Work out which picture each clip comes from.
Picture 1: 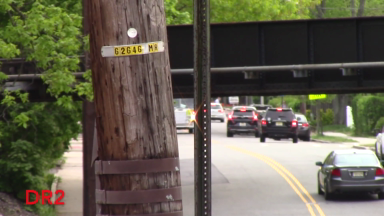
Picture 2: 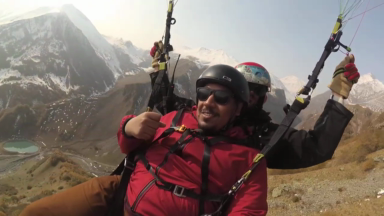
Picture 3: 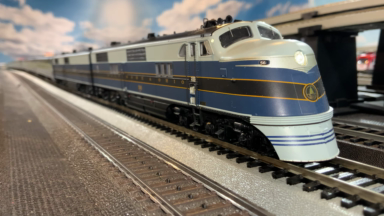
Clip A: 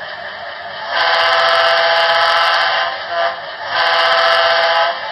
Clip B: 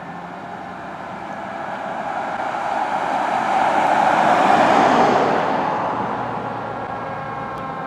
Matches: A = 3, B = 1